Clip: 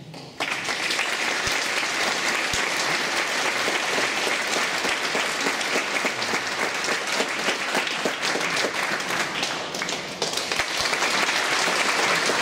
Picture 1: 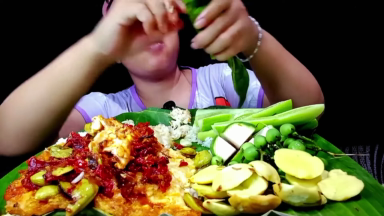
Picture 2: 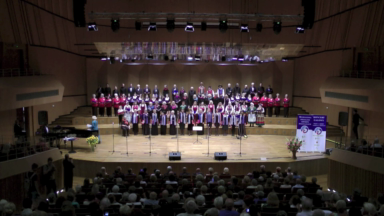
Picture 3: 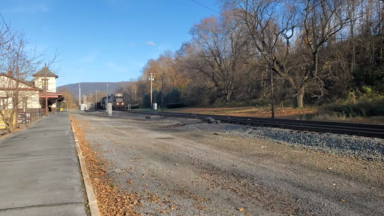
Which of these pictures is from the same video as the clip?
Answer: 2